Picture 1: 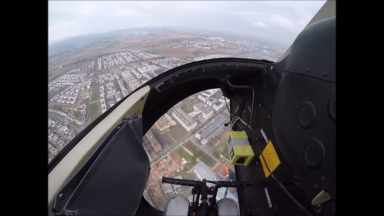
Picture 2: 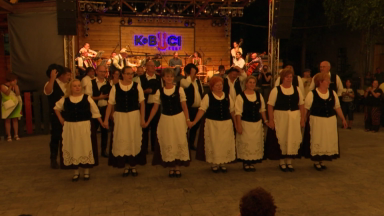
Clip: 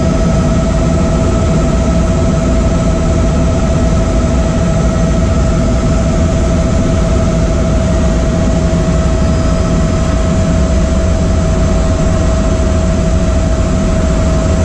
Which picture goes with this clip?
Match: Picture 1